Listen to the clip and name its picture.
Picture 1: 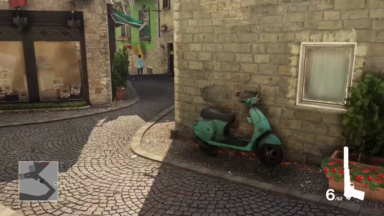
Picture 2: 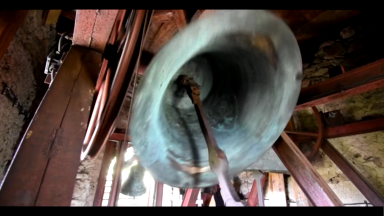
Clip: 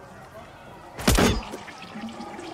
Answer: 1